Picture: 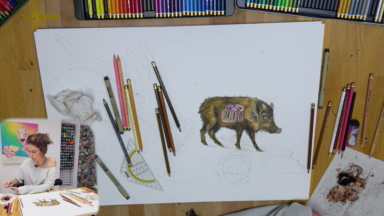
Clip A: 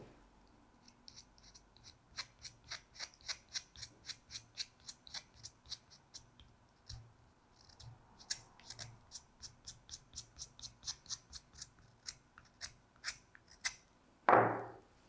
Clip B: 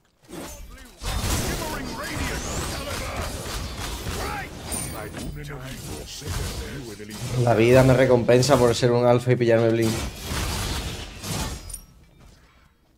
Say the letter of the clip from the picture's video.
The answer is A